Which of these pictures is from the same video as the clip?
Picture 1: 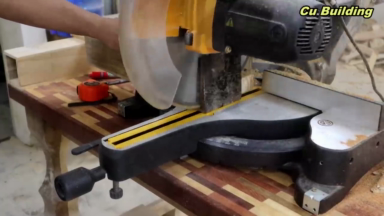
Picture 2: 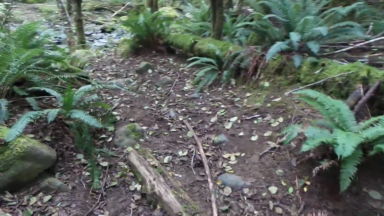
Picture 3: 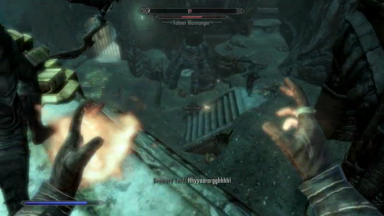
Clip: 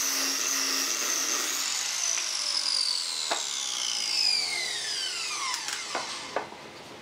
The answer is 1